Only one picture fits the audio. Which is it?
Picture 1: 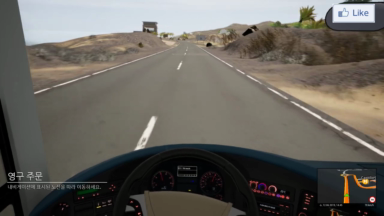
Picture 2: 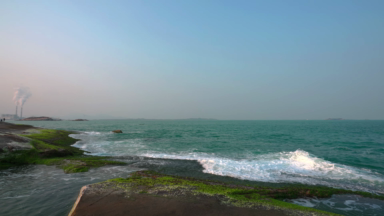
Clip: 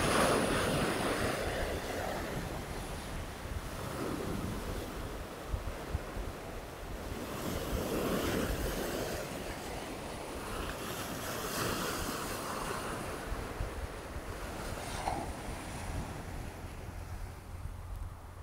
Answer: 2